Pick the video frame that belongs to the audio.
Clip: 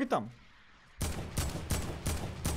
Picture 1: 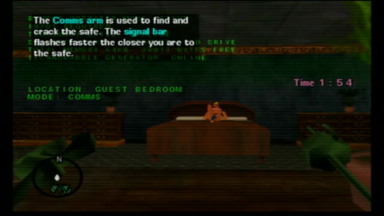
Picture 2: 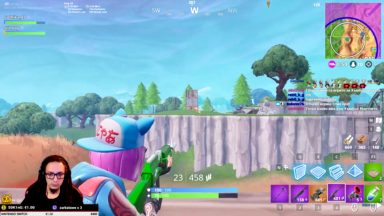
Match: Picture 2